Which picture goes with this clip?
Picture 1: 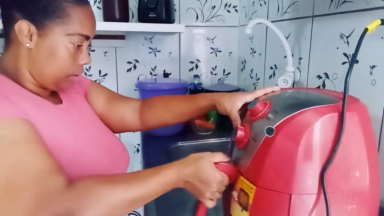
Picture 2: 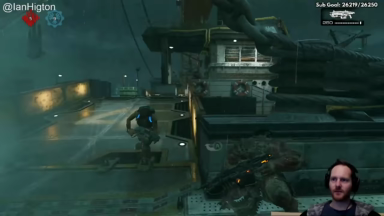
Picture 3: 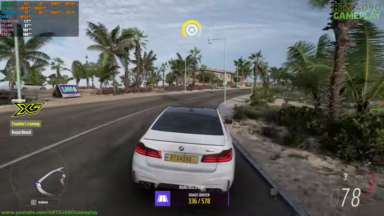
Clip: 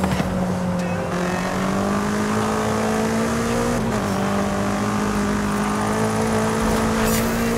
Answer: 3